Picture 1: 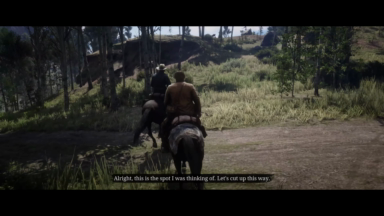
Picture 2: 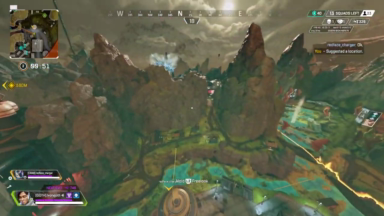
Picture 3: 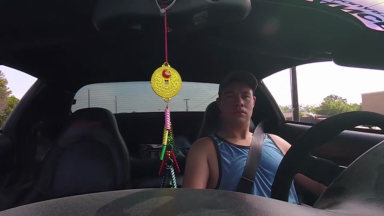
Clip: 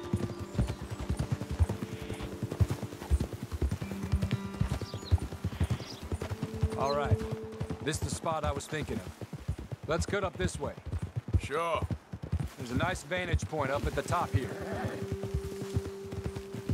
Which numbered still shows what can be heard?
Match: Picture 1